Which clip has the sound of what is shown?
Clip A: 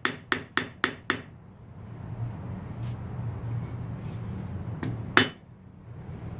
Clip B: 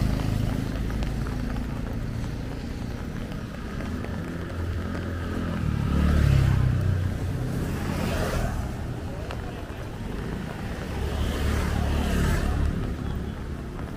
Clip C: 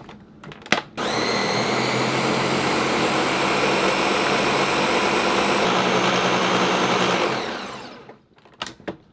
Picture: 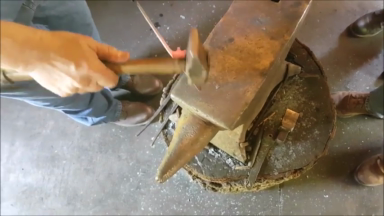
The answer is A